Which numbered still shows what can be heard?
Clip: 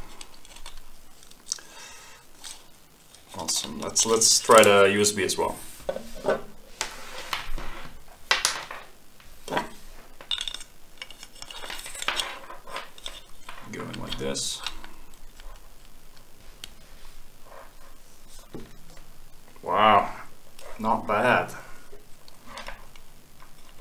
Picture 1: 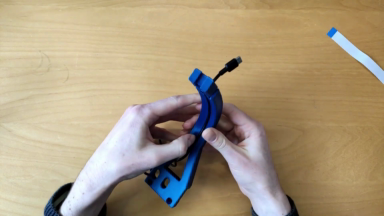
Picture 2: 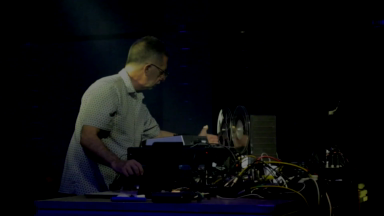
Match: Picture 1